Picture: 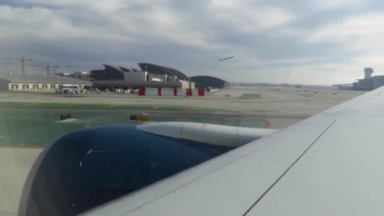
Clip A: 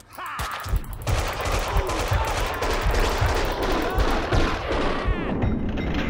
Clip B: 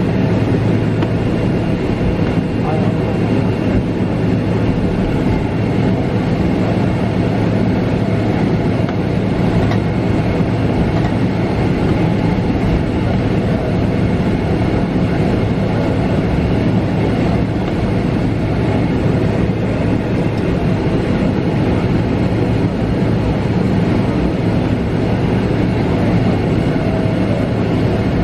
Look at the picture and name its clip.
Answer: B